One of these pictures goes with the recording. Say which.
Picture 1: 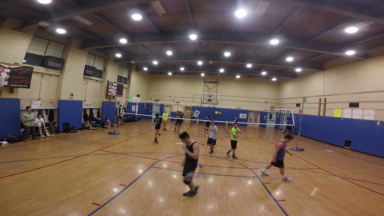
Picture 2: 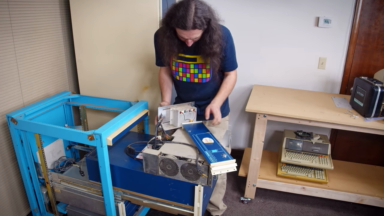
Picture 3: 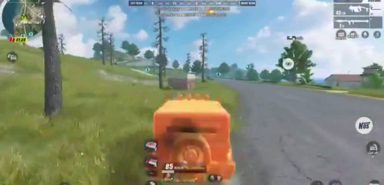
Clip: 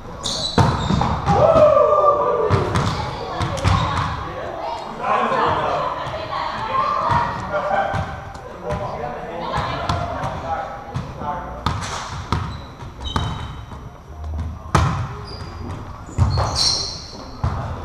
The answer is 1